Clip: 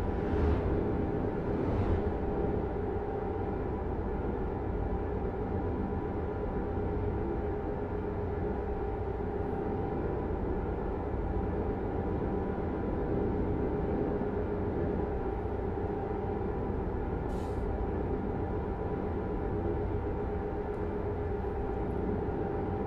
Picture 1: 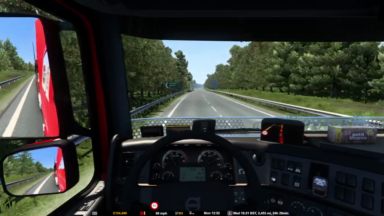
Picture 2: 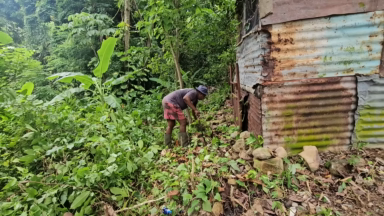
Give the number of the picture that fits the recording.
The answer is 1